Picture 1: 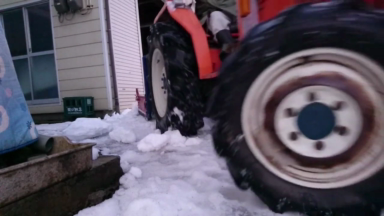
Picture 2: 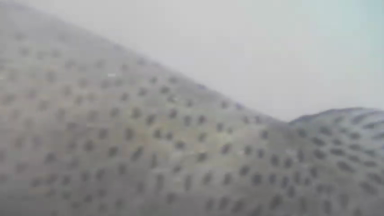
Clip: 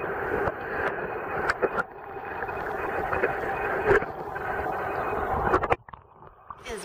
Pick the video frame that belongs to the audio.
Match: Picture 2